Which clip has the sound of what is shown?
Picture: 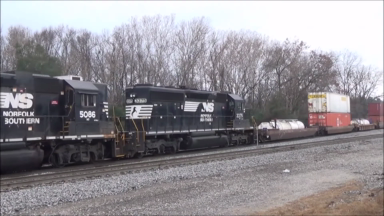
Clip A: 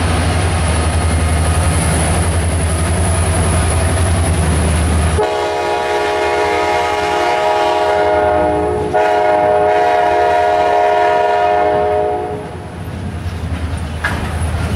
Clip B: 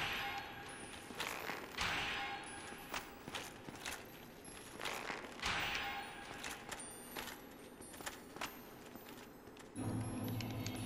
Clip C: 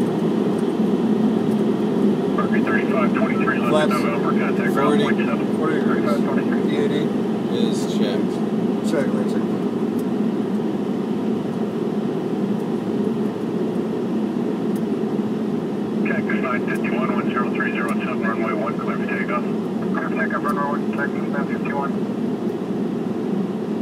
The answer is A